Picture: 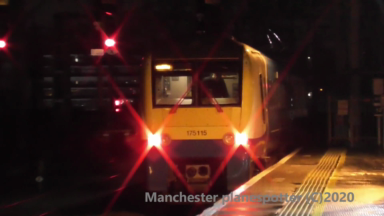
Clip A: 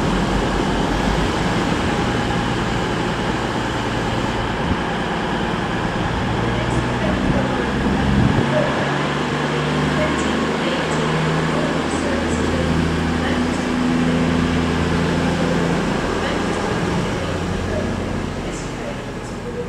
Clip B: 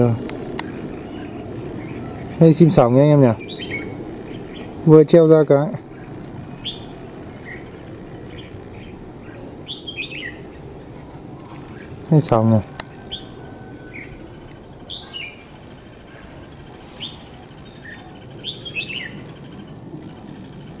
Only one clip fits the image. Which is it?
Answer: A